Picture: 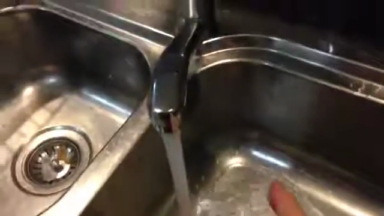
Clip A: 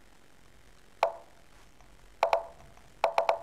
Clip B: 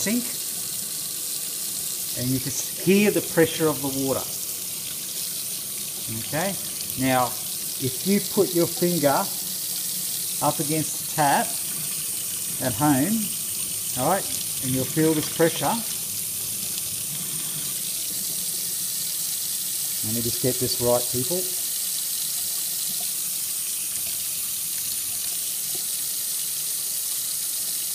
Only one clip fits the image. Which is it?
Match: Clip B